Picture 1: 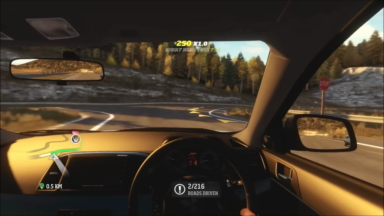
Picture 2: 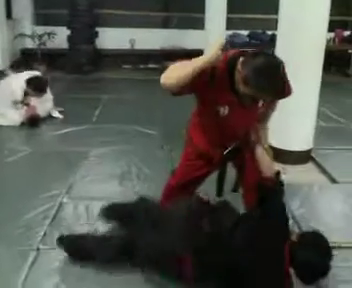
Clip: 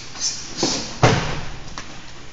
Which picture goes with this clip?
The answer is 2